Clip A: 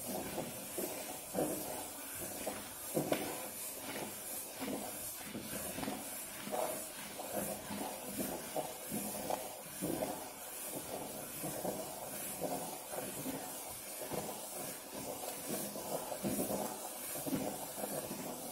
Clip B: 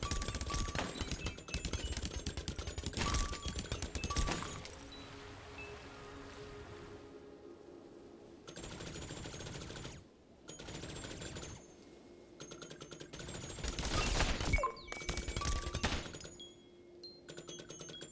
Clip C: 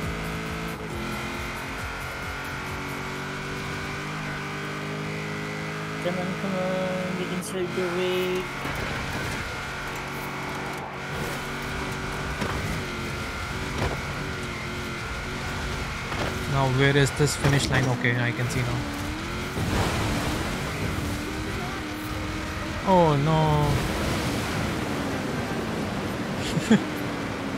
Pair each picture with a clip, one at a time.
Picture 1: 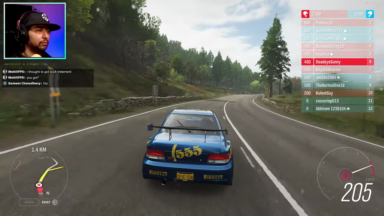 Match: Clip C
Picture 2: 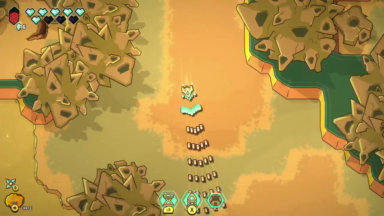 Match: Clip B